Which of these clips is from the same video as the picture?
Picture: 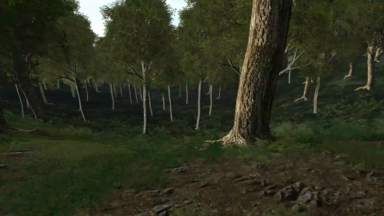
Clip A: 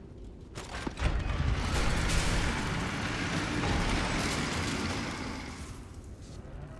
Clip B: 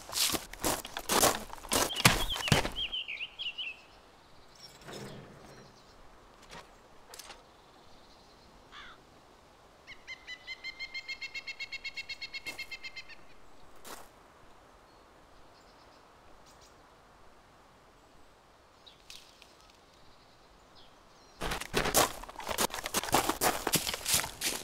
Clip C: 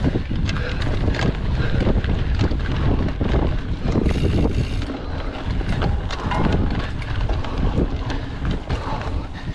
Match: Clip B